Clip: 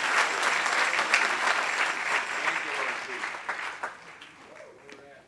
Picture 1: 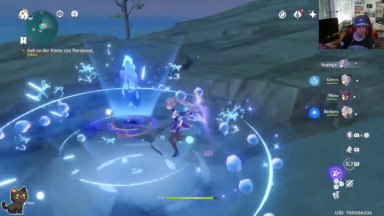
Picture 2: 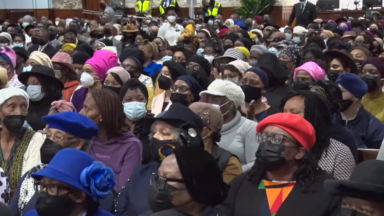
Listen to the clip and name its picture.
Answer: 2